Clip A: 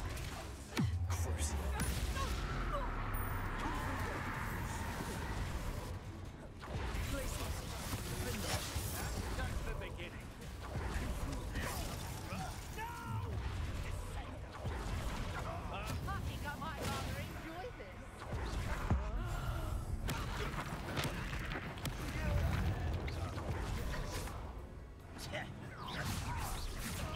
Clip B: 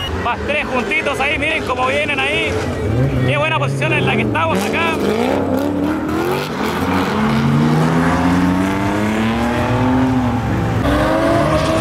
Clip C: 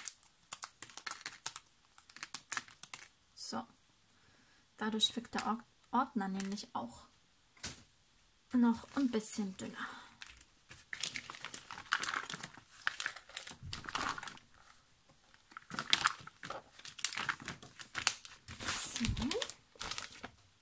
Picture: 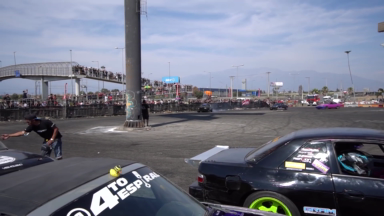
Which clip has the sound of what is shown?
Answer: B